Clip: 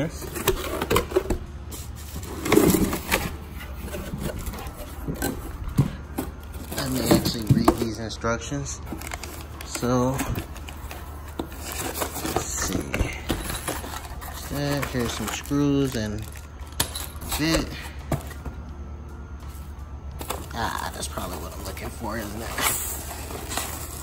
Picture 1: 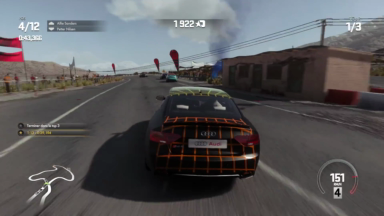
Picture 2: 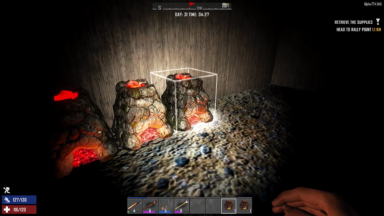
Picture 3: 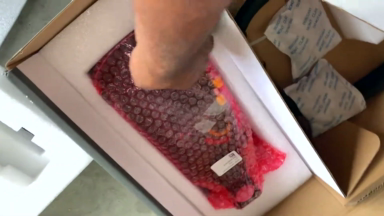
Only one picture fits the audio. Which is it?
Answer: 3